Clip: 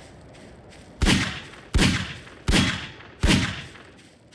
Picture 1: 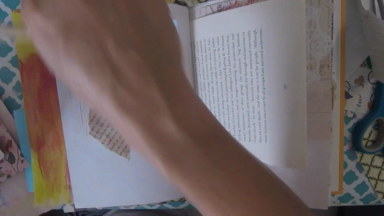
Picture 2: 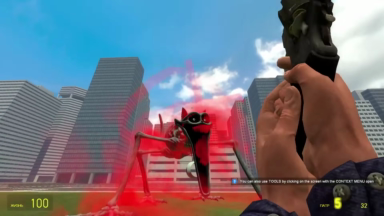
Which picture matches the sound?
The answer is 2